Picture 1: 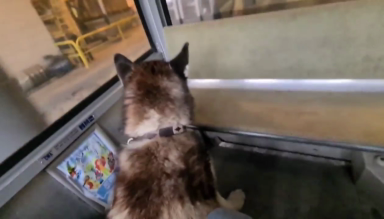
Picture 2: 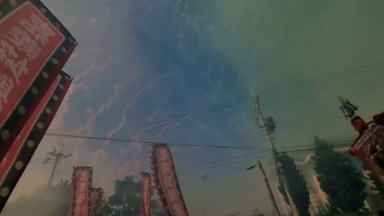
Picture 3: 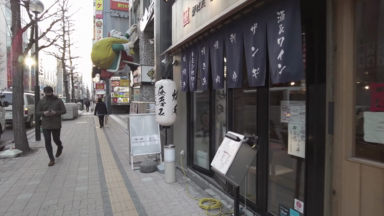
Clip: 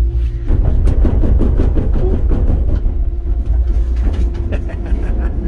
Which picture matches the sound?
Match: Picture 1